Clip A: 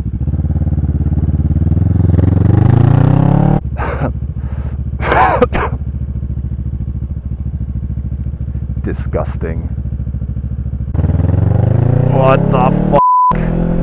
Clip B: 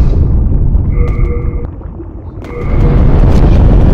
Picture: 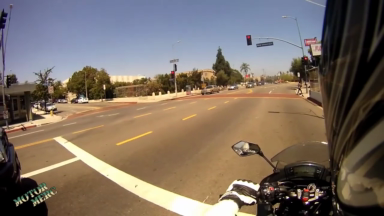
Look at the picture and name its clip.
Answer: A